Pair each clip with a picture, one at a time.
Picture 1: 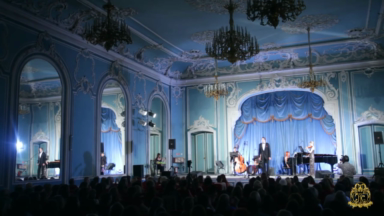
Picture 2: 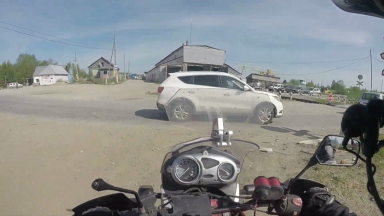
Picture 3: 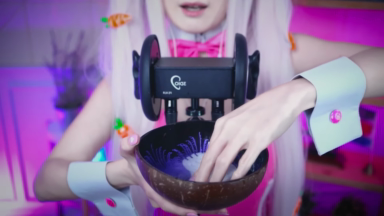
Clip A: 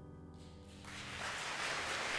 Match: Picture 1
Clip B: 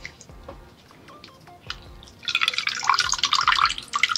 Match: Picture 3